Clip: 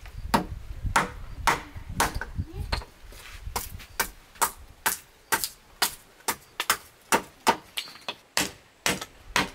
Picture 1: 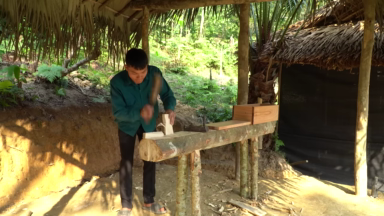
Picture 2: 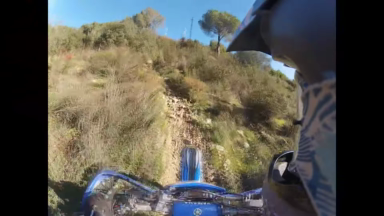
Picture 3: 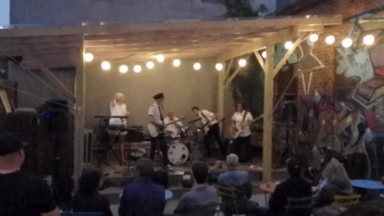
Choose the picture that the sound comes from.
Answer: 1